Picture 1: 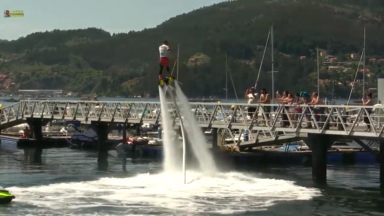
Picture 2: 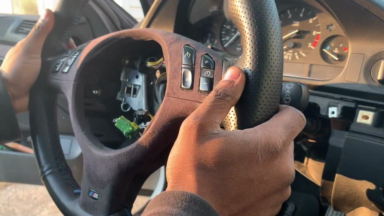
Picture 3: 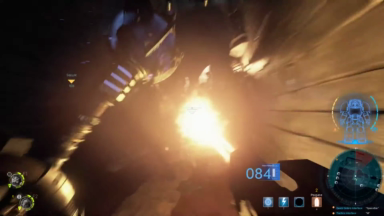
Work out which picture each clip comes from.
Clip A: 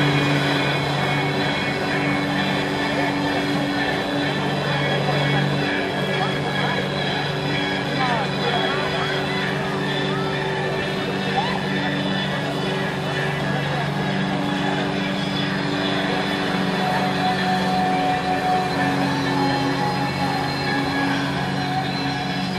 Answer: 1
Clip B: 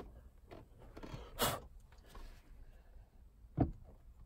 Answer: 2